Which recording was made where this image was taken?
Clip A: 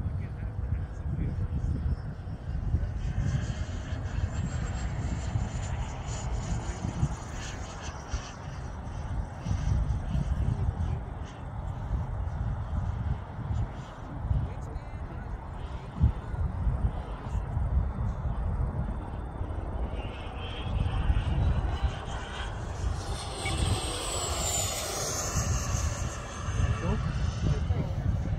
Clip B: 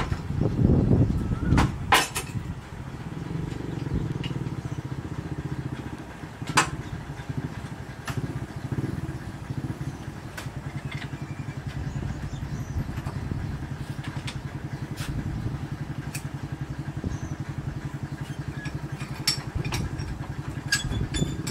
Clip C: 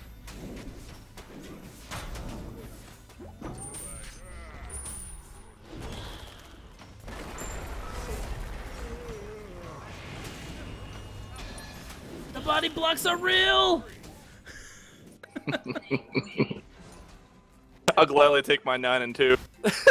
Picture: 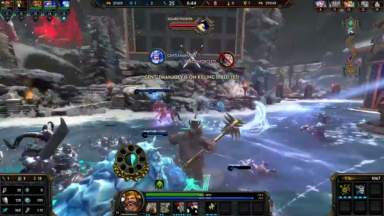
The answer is C